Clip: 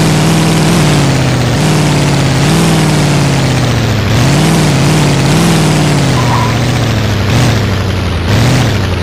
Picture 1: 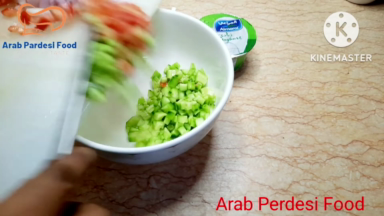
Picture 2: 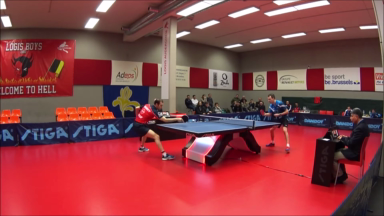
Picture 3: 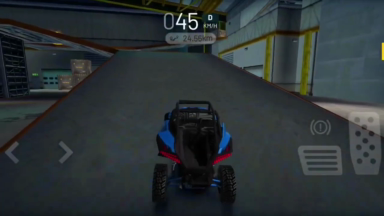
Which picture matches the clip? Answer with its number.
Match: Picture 3